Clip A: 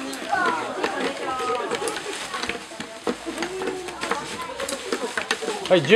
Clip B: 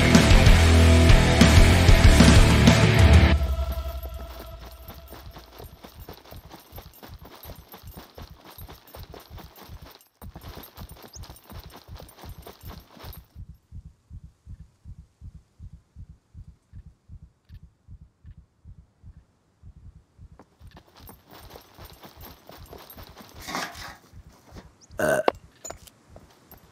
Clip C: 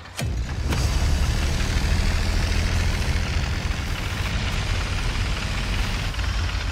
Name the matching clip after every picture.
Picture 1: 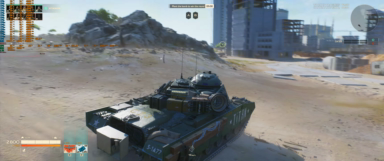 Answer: C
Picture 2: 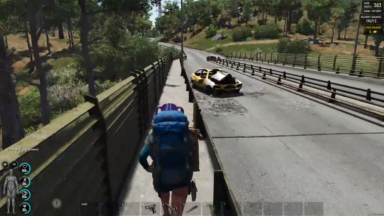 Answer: B